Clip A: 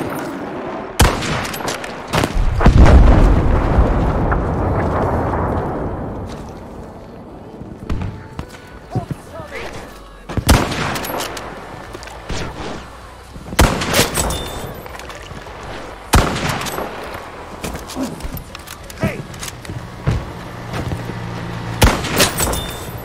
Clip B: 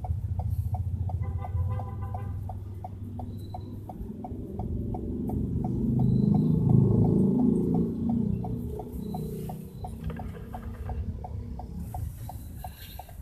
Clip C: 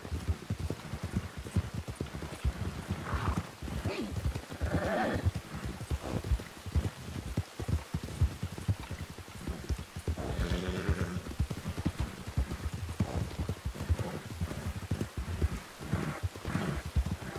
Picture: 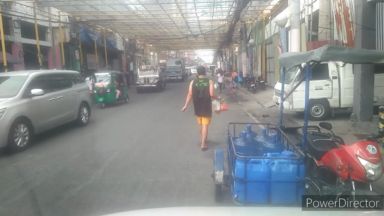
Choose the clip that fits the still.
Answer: B